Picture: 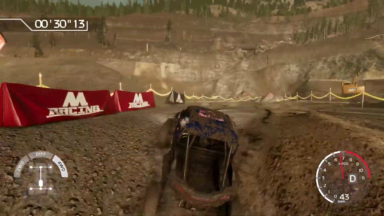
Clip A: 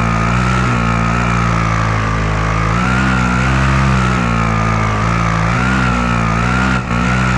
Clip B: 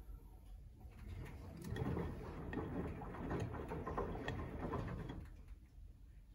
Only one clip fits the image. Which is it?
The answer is A